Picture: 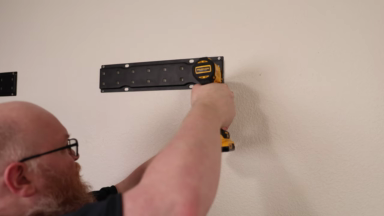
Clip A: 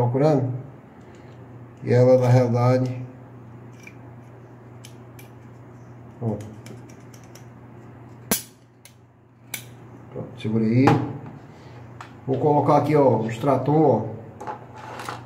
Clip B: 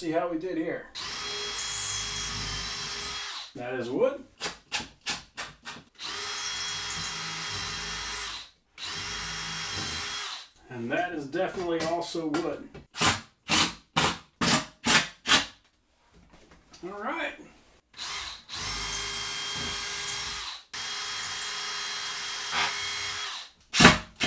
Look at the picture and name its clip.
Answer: B